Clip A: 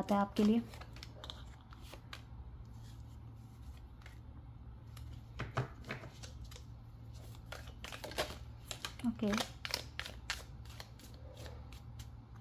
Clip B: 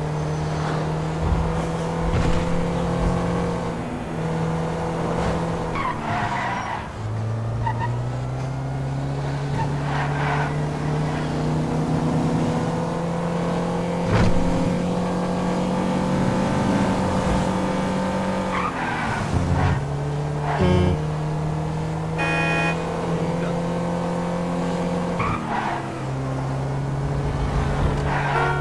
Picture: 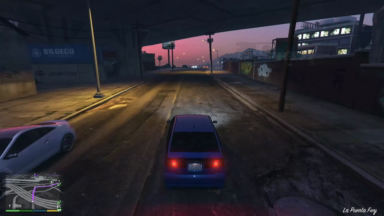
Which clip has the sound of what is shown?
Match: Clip B